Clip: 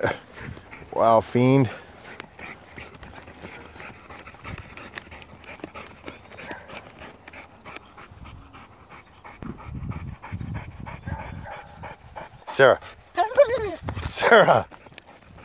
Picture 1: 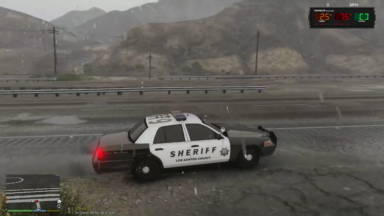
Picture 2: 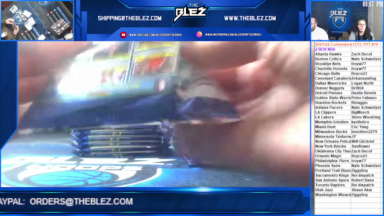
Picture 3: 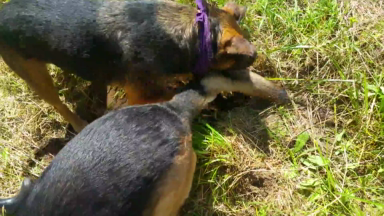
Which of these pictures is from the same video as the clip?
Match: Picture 3